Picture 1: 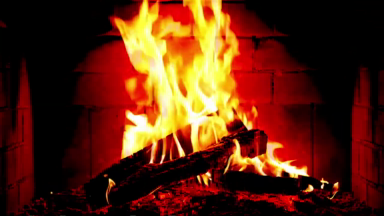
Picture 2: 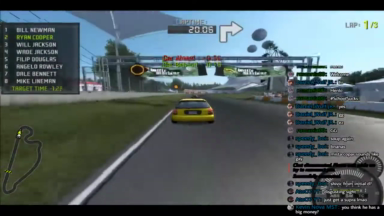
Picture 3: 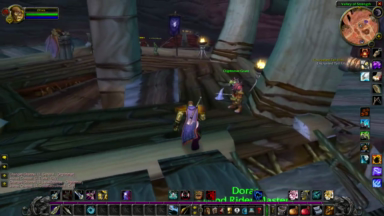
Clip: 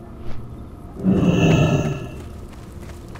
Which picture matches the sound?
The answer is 3